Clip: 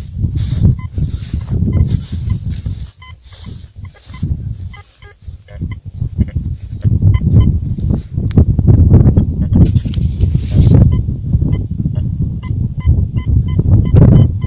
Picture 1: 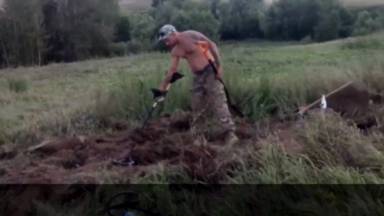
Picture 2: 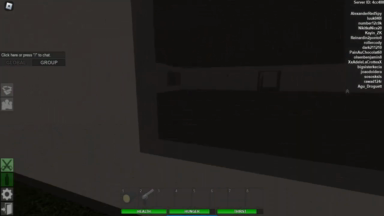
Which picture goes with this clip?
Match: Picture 1